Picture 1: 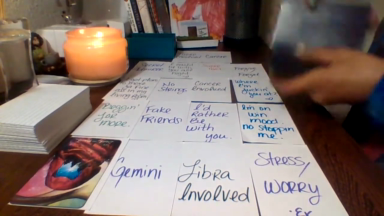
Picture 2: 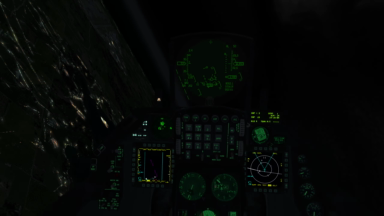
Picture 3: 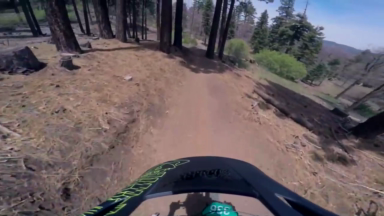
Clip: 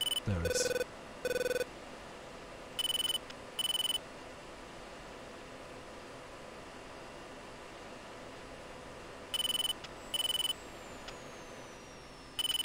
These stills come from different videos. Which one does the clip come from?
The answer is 2